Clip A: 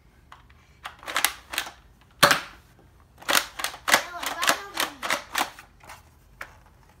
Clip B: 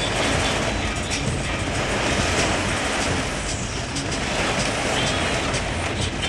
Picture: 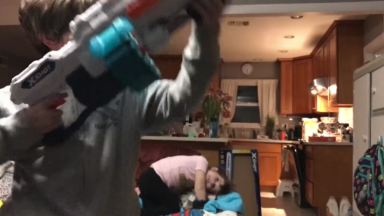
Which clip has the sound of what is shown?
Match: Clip A